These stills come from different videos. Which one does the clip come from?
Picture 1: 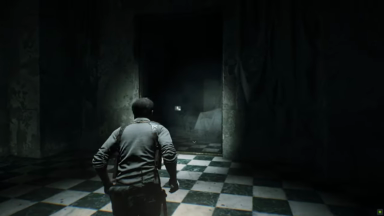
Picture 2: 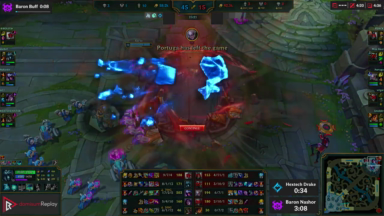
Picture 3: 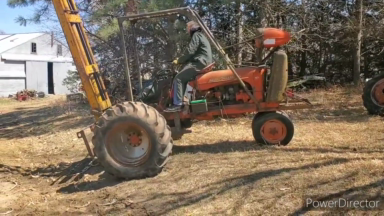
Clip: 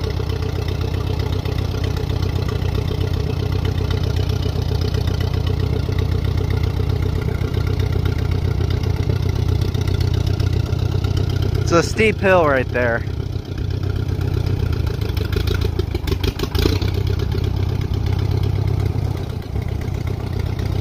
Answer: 3